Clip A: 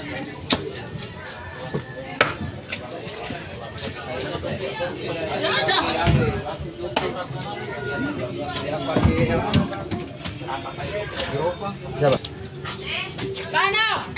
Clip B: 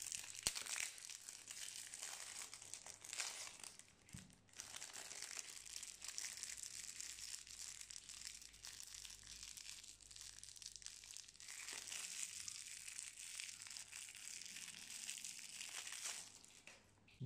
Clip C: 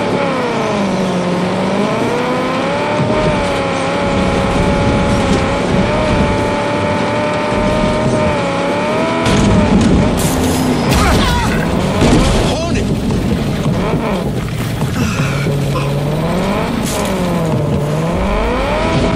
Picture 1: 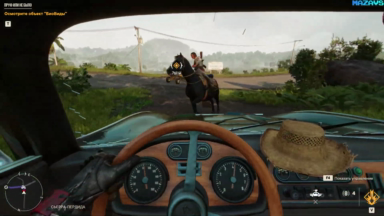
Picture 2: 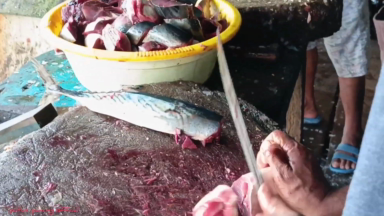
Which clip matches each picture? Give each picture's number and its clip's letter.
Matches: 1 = C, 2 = A